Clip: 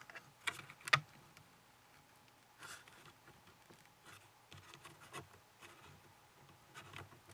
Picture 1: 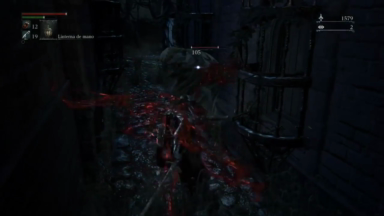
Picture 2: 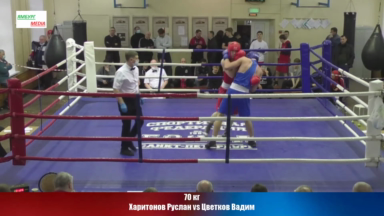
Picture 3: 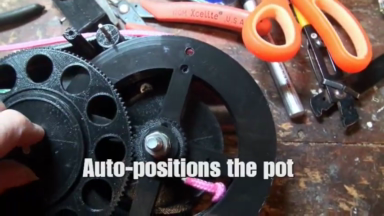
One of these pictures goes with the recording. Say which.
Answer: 3